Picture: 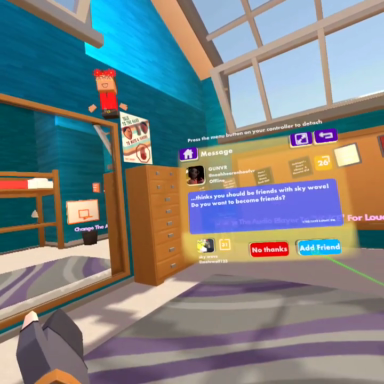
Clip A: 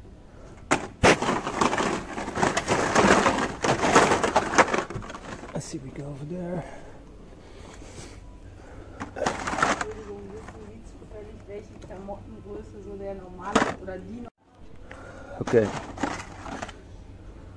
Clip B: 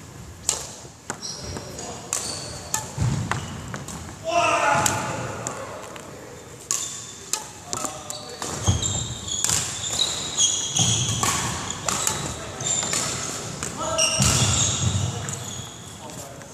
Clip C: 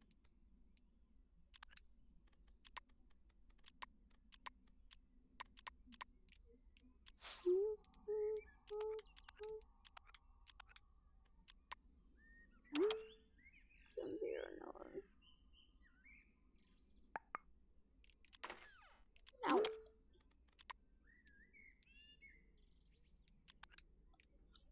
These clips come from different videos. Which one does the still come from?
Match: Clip C